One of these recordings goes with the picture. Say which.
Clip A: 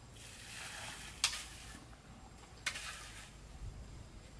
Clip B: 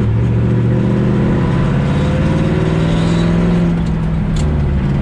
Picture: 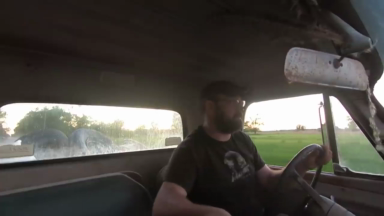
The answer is B